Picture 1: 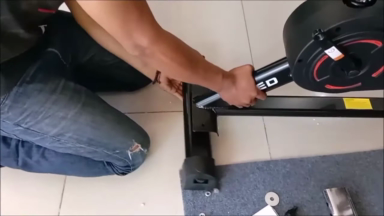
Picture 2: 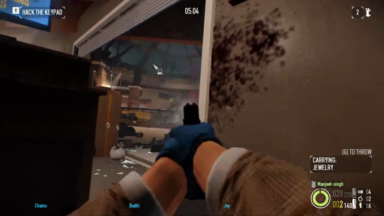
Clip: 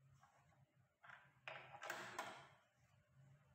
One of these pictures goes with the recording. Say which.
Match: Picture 1